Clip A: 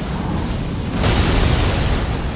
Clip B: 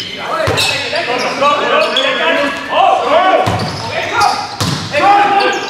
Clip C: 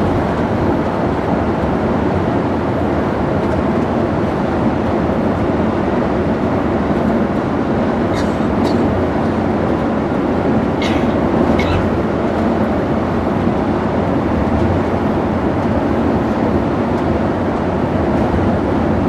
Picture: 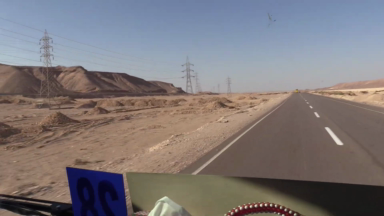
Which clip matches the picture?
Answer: C